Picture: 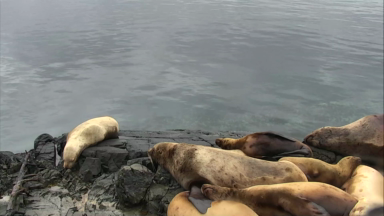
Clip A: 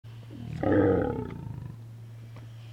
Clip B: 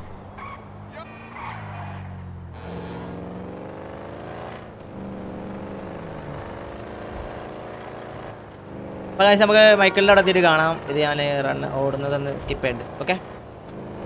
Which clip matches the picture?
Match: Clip A